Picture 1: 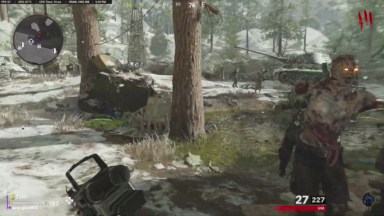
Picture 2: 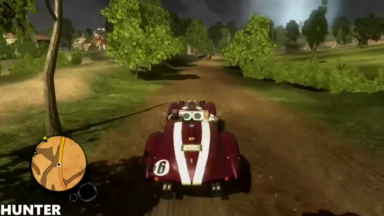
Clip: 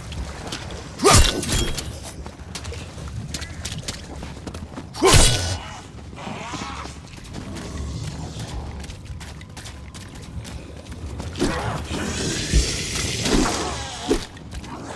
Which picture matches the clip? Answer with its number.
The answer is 1